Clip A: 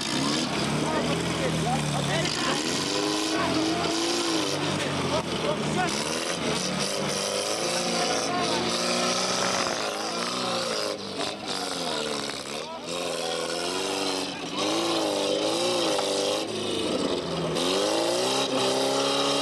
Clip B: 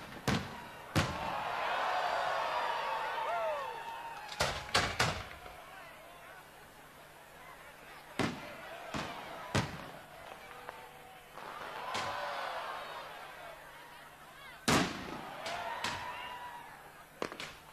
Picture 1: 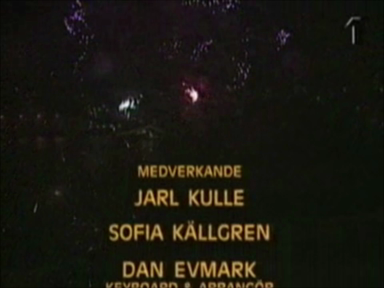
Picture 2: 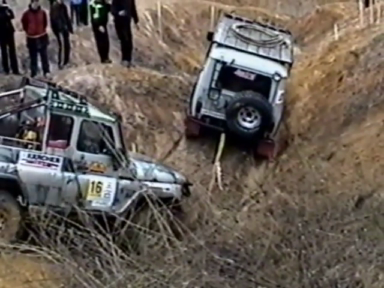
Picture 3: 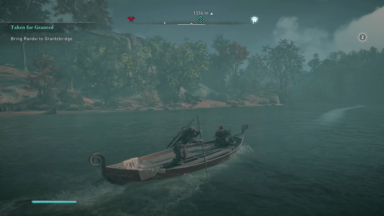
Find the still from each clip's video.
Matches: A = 2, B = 1